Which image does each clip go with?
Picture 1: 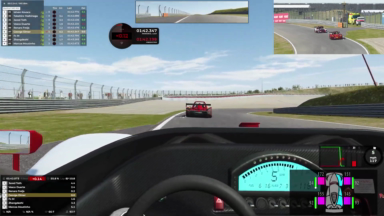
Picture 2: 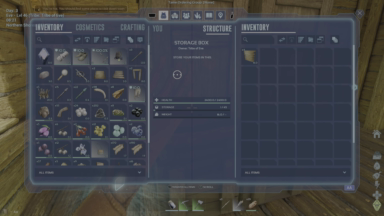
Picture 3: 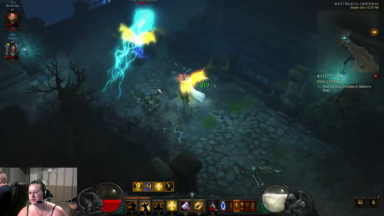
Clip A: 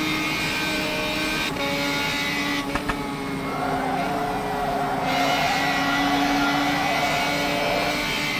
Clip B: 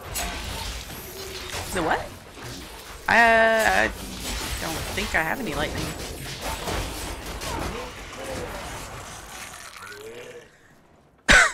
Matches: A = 1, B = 3